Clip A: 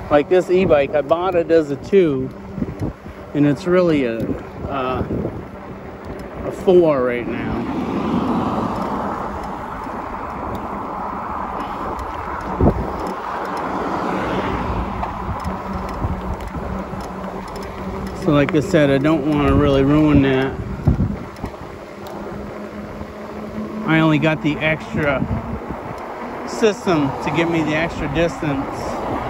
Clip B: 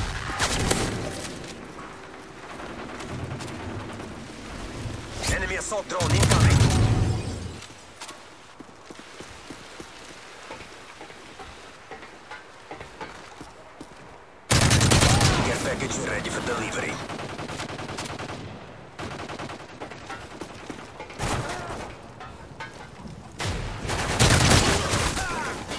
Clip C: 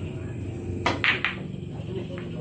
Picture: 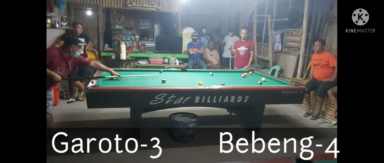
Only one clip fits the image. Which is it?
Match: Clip C